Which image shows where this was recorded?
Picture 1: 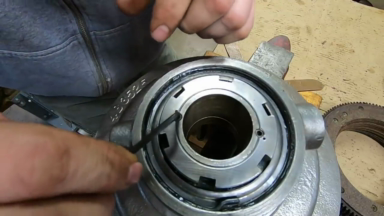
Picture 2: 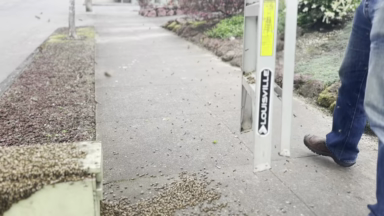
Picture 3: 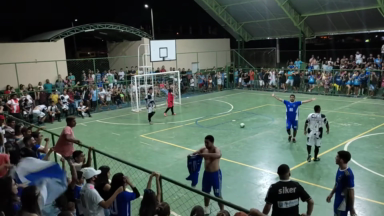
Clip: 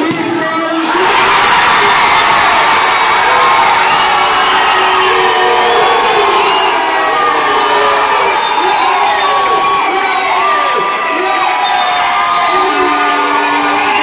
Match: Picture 3